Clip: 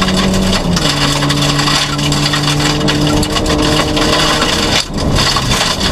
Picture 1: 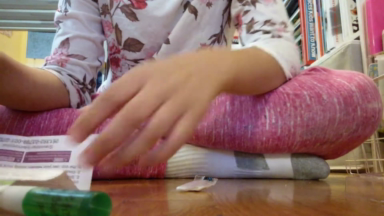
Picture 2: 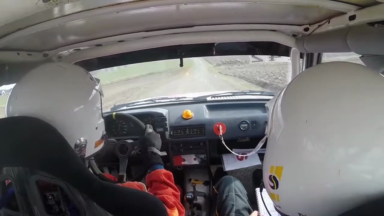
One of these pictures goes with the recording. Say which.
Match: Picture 2